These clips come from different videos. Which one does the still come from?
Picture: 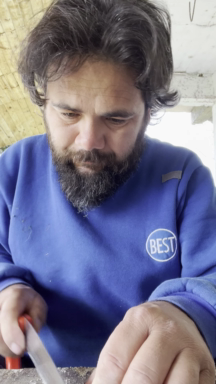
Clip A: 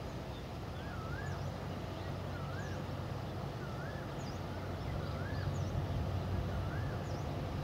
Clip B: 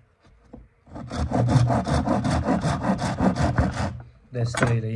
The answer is B